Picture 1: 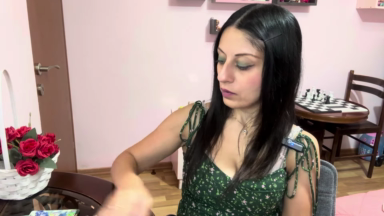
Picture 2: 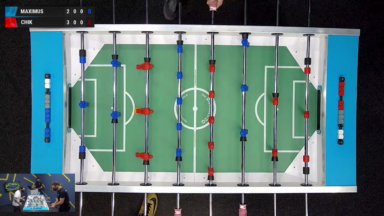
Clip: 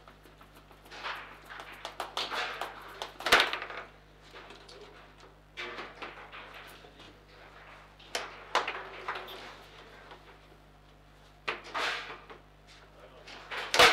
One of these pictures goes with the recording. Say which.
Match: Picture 2